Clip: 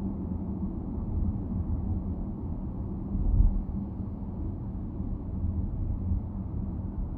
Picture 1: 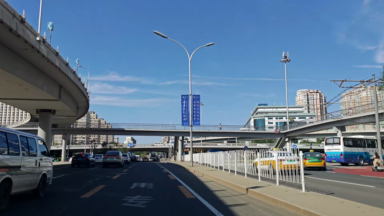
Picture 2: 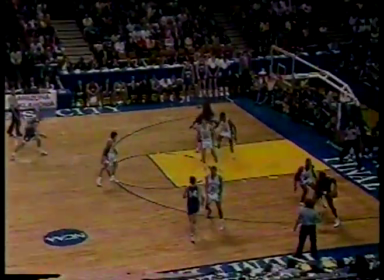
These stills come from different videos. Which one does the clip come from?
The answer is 1